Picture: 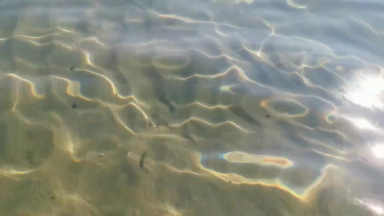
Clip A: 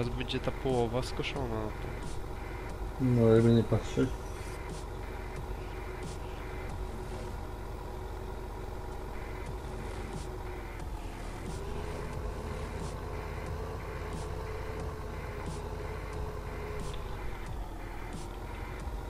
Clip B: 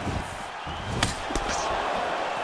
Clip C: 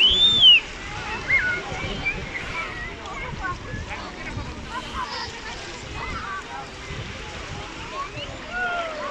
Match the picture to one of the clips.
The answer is C